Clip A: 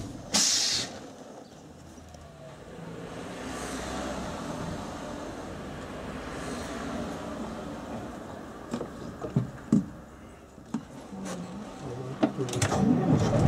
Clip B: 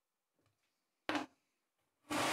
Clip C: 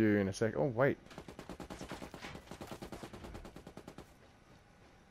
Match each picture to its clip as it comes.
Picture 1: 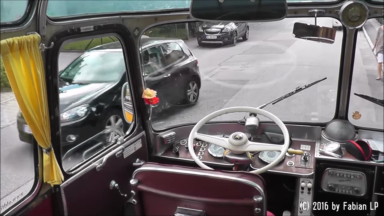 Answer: A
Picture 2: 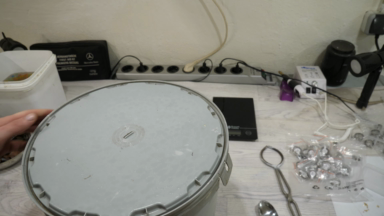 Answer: B